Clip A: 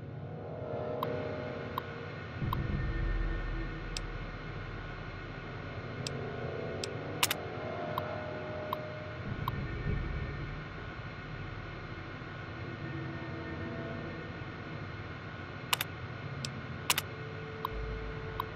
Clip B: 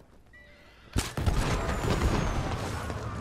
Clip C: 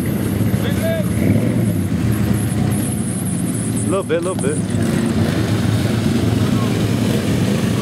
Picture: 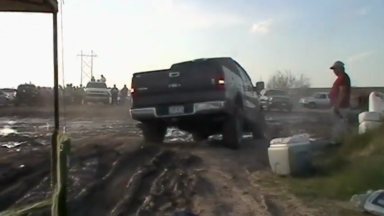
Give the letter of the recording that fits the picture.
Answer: C